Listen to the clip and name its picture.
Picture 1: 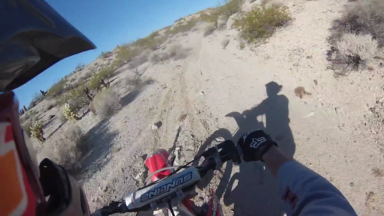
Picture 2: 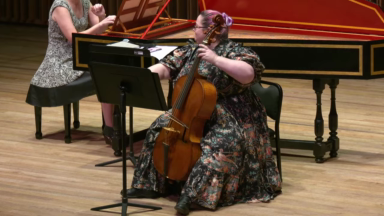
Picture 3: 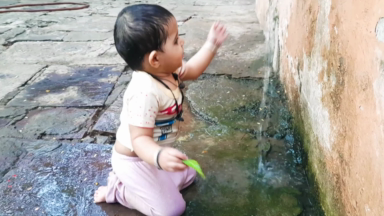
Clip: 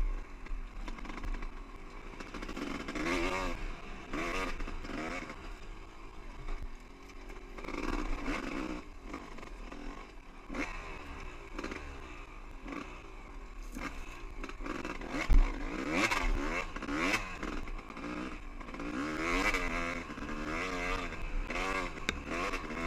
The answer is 1